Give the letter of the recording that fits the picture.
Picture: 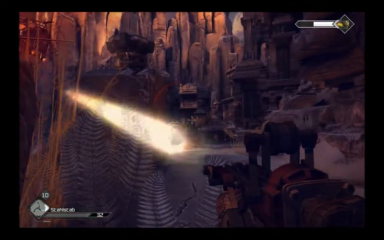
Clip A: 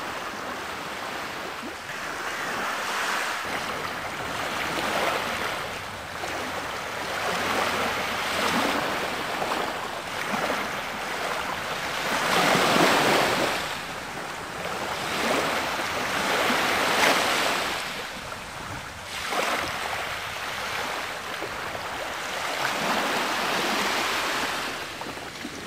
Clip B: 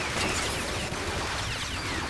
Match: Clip B